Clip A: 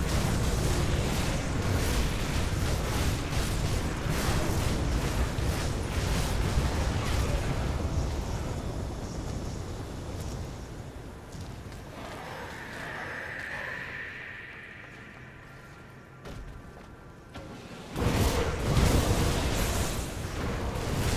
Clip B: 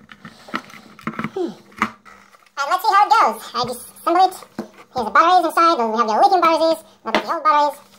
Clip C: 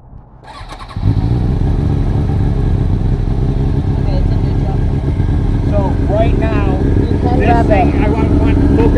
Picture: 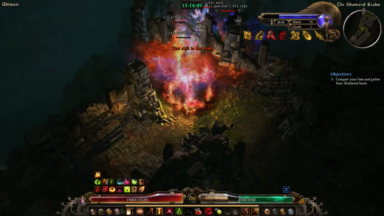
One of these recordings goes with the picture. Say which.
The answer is A